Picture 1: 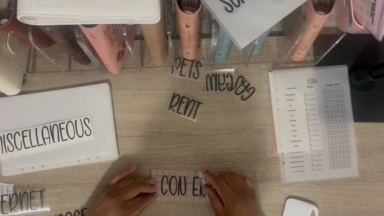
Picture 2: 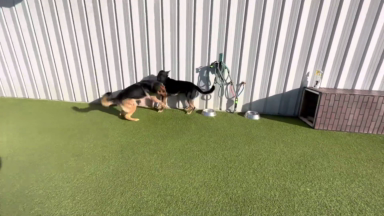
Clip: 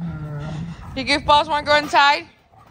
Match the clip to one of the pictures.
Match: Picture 2